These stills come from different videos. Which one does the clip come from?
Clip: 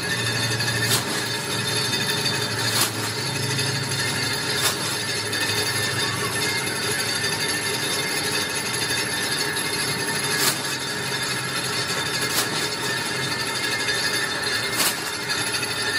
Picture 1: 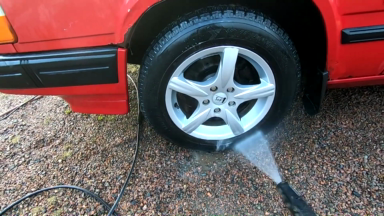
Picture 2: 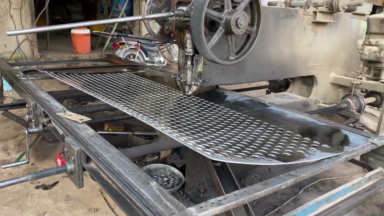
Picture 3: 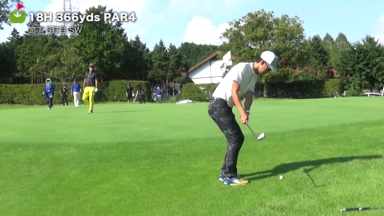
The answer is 2